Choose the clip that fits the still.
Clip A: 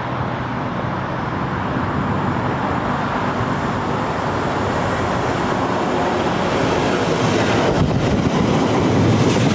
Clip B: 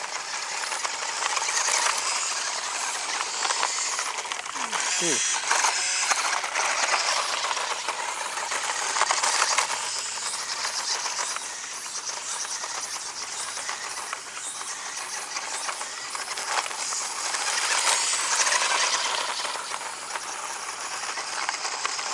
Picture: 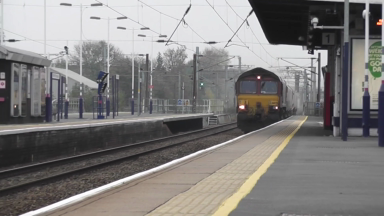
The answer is A